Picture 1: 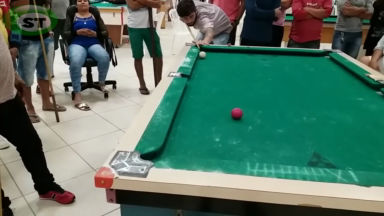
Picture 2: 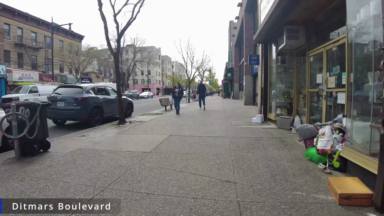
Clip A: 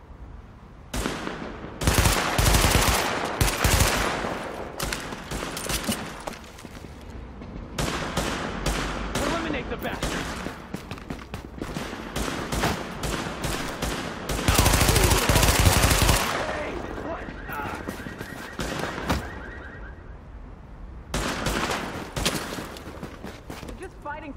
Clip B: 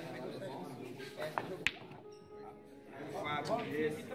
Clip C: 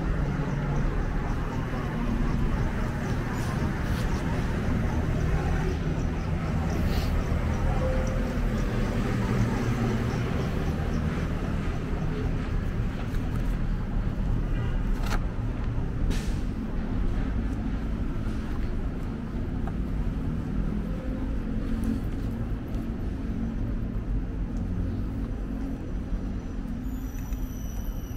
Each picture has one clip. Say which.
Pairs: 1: B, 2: C